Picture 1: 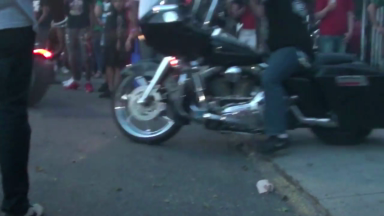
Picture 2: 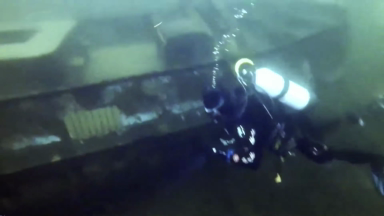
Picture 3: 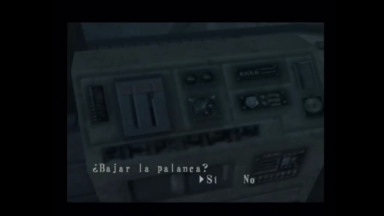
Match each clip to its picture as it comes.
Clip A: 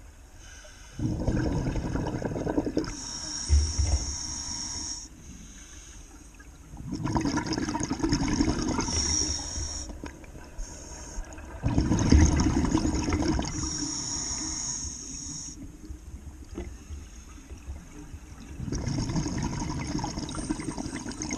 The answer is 2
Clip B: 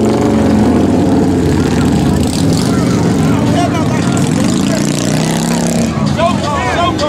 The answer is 1